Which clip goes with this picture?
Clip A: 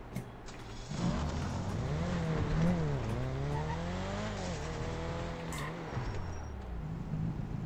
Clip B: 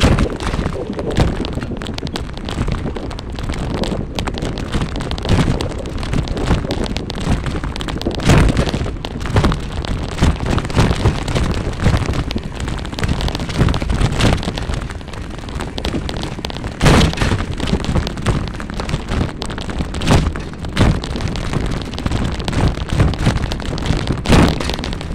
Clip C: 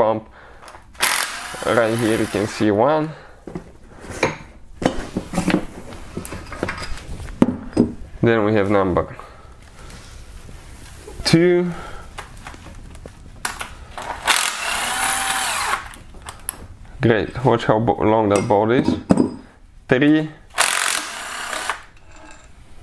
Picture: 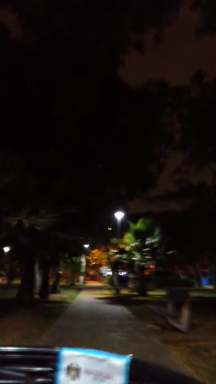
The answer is B